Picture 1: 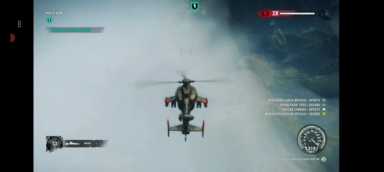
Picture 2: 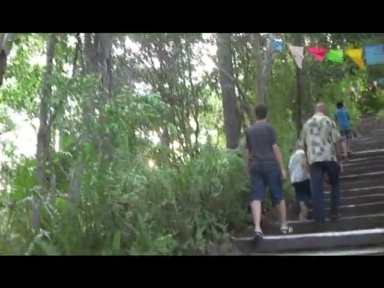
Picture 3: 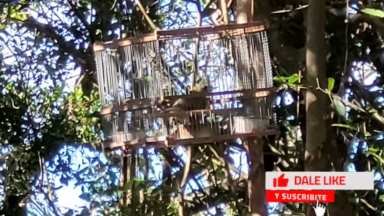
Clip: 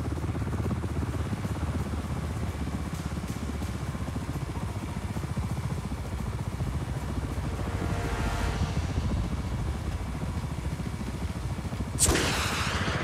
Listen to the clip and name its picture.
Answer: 1